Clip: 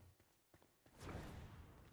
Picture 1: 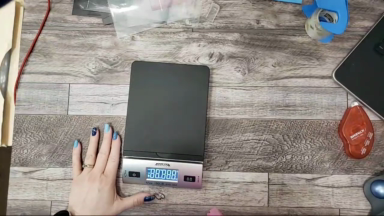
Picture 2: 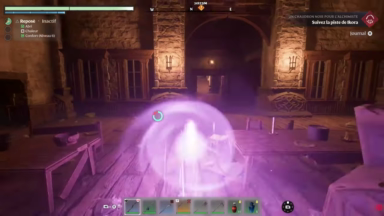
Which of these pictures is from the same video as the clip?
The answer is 2